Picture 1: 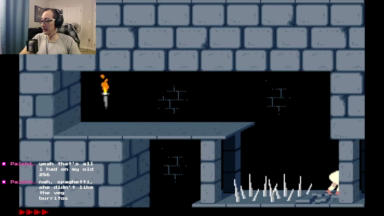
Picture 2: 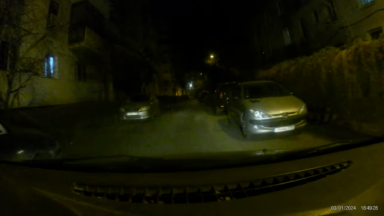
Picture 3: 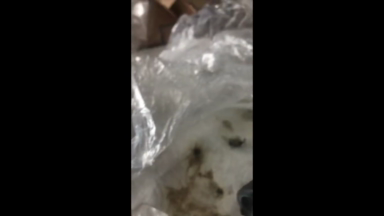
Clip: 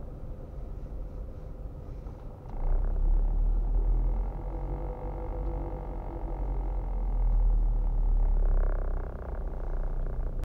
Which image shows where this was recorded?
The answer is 2